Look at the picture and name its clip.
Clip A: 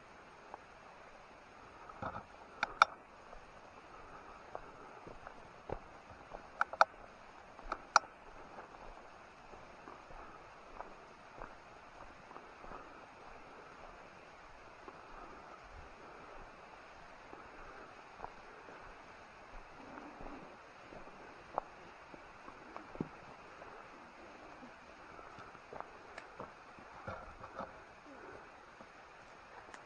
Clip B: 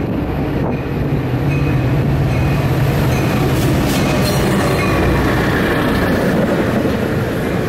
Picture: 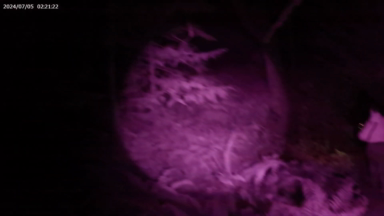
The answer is A